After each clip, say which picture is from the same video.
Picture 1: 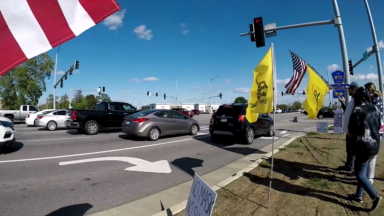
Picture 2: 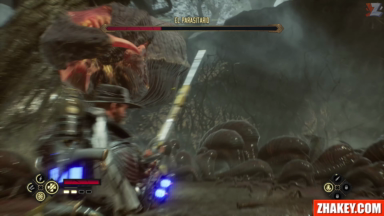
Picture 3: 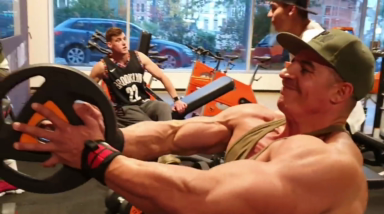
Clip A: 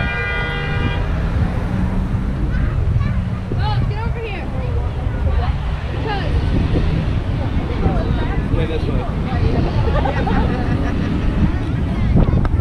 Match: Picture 1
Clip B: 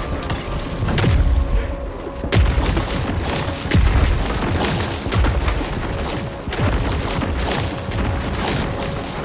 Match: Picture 2